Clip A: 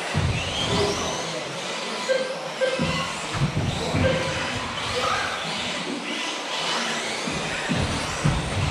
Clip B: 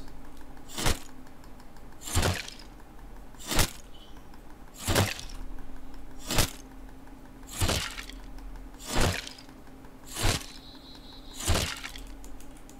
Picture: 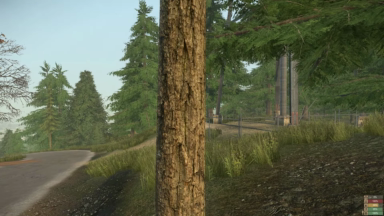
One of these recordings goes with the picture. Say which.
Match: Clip B